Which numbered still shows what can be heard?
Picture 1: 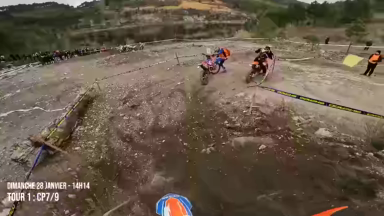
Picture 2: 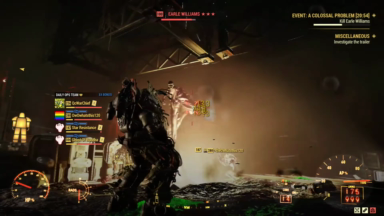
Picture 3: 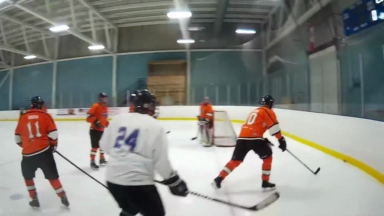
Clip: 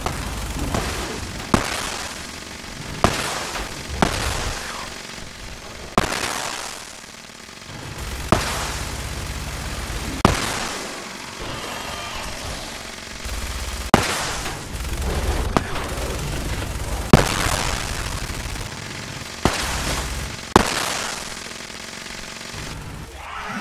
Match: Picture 2